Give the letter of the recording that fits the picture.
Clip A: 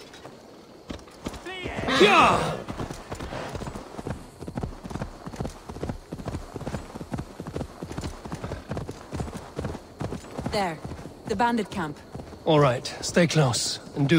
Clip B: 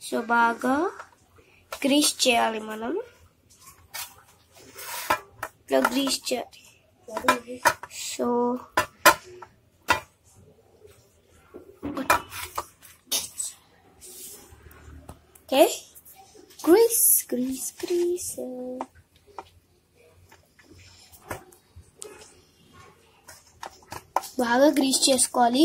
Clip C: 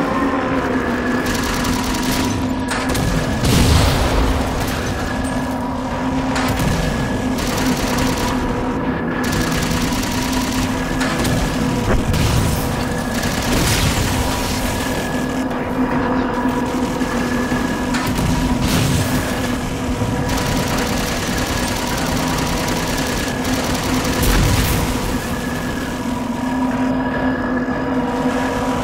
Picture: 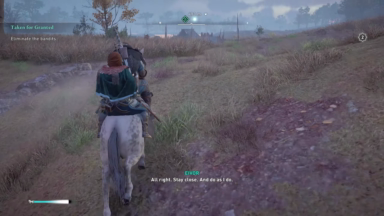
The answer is A